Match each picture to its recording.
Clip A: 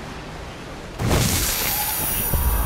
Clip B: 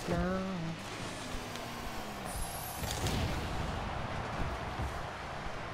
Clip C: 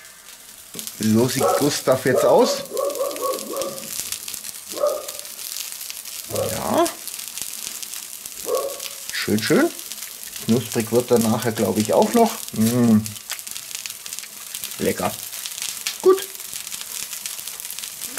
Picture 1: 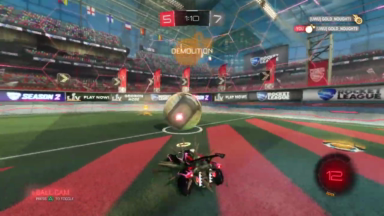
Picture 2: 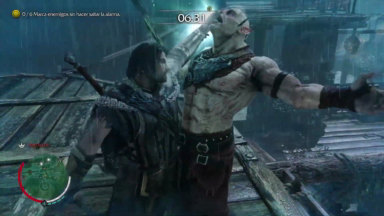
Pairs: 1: B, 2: A